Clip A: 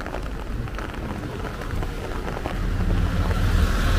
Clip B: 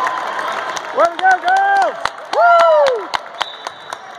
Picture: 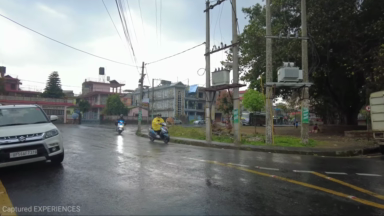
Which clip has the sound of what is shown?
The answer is A